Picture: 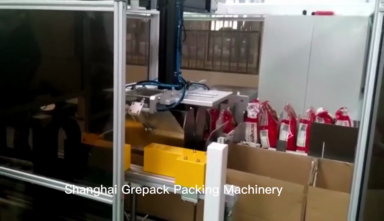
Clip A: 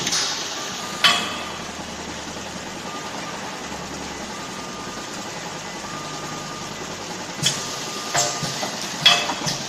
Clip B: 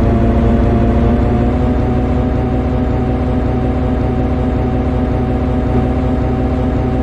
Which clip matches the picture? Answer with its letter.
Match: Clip A